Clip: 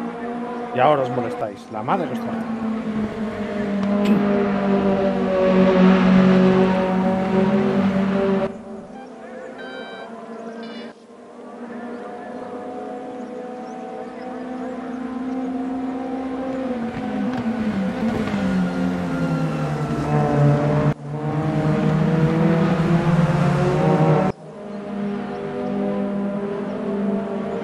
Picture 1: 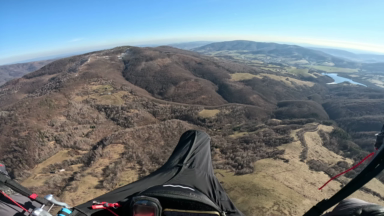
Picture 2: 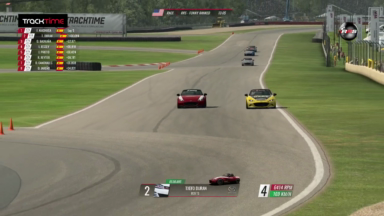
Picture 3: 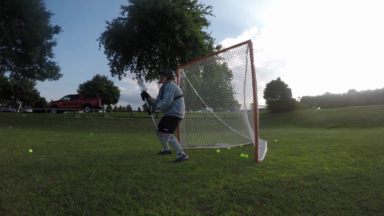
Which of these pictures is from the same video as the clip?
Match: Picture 2